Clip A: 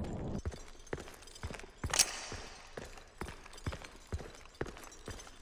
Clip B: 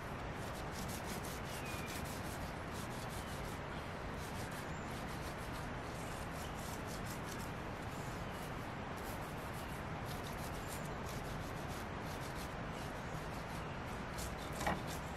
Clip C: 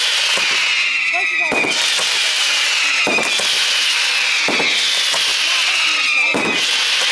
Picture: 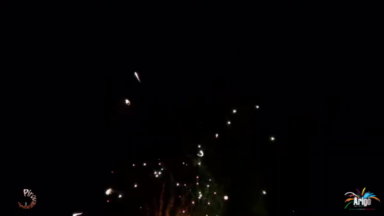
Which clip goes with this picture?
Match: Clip C